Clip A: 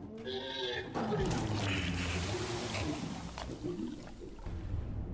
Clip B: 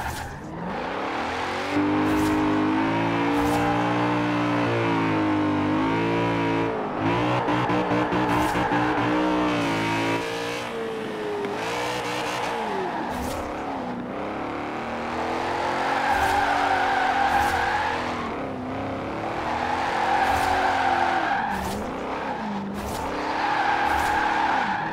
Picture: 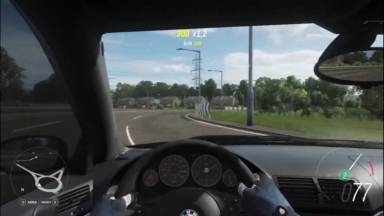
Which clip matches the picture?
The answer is B